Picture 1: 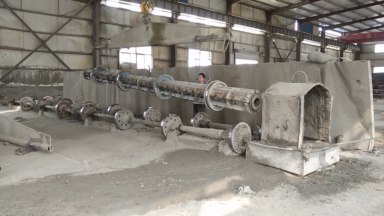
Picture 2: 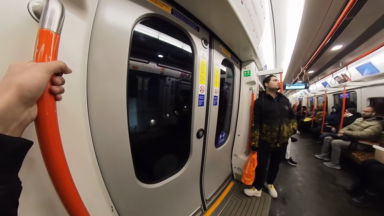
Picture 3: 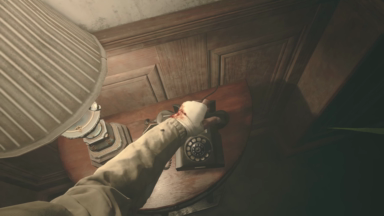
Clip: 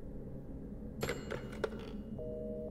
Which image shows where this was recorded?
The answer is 3